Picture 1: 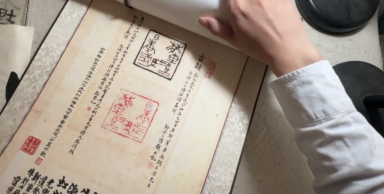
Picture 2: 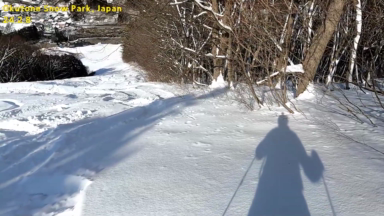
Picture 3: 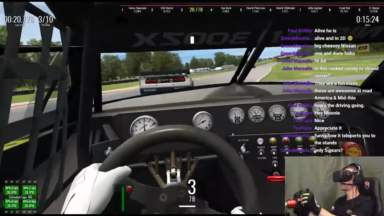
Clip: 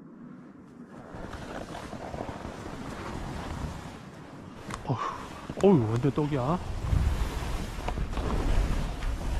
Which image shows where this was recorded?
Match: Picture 2